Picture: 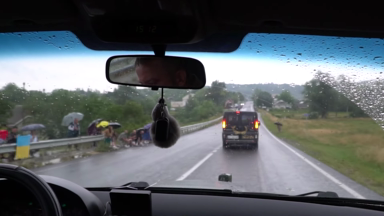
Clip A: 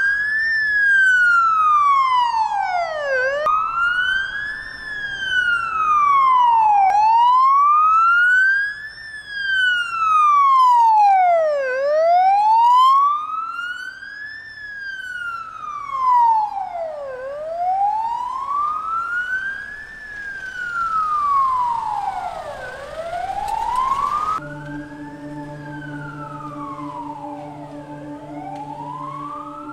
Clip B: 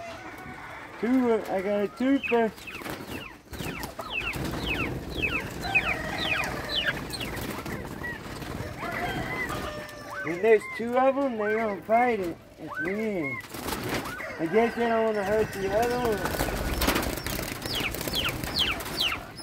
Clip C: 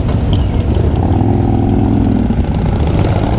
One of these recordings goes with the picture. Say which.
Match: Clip A